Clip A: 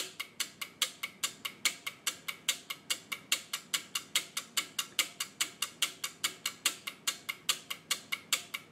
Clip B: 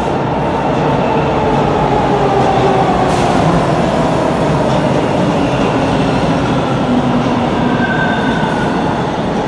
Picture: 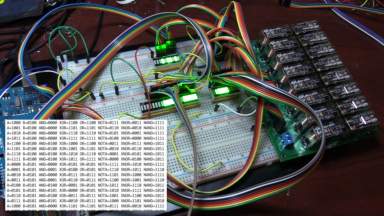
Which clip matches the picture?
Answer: A